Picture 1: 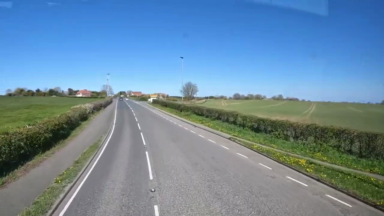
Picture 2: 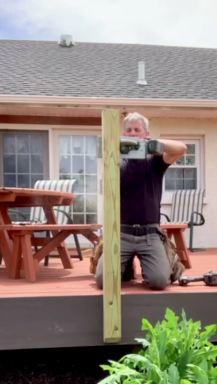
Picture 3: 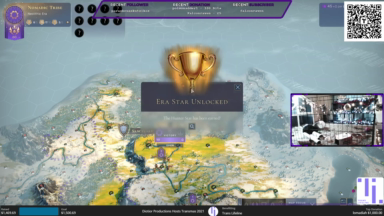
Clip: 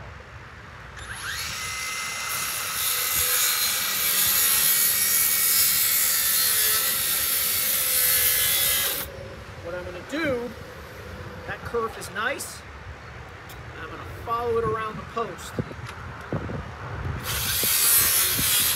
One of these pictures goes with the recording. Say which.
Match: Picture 2